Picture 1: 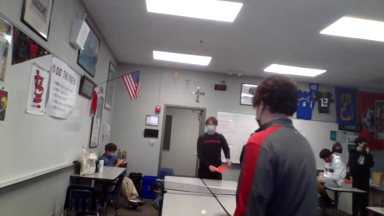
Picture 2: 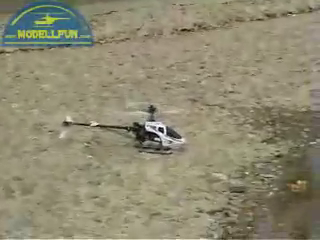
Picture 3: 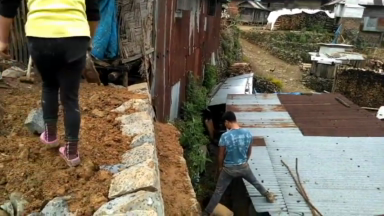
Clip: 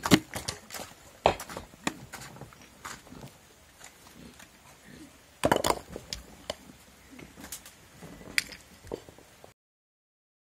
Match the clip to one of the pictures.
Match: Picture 3